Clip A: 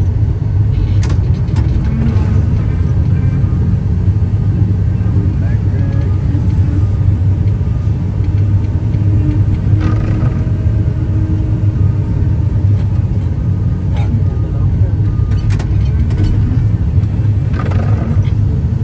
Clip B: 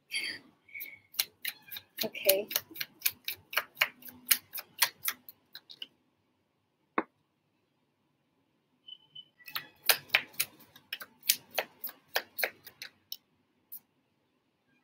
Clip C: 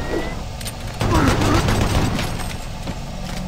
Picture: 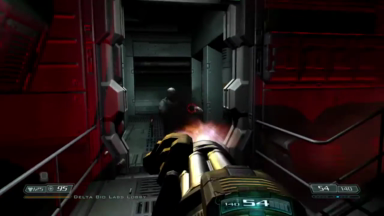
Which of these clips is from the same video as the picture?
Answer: C